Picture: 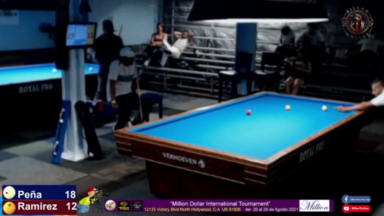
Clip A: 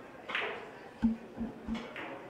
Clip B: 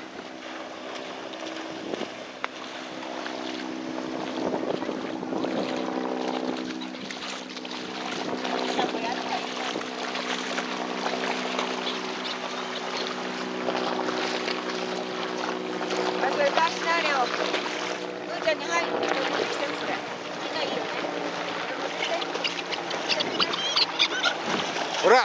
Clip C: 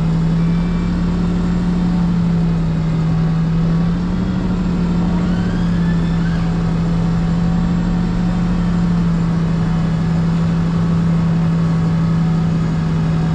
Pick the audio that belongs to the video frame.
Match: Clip A